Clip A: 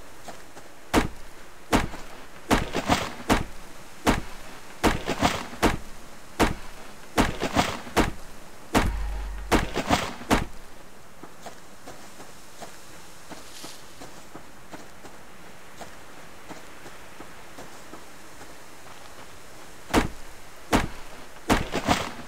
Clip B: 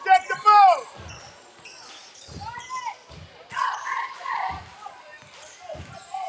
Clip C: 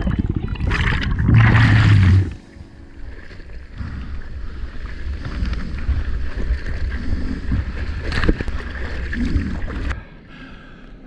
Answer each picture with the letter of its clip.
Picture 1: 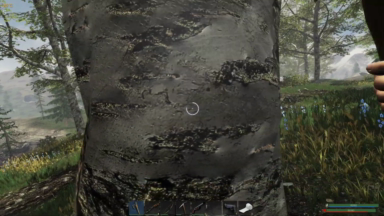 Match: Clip A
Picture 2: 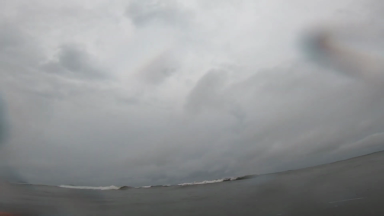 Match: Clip C